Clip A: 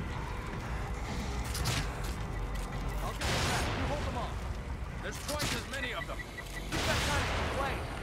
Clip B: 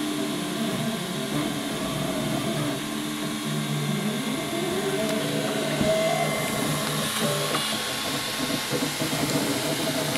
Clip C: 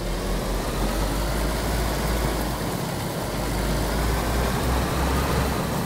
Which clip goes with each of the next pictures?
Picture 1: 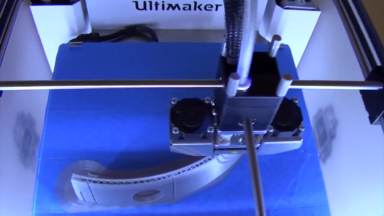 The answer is B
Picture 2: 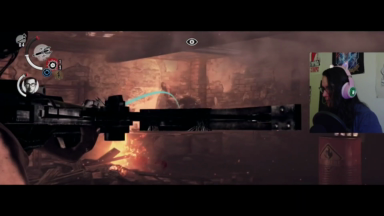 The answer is A